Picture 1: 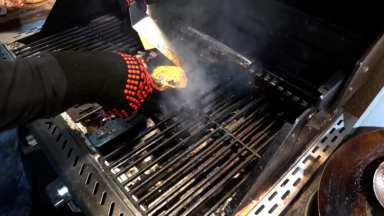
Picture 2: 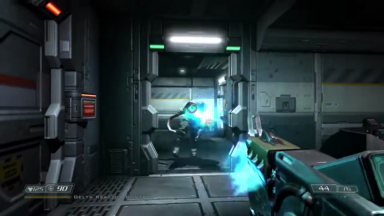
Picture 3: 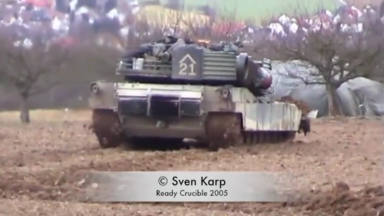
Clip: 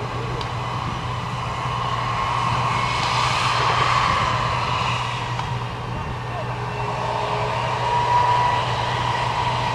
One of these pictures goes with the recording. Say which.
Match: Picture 3